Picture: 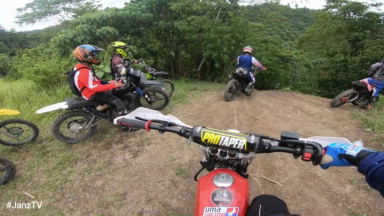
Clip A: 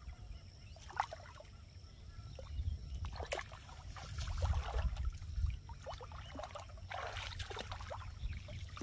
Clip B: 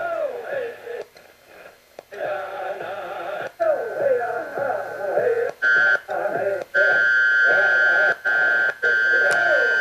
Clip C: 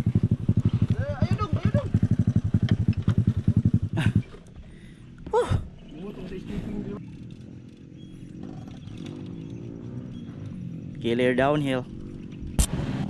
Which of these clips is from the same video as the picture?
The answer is C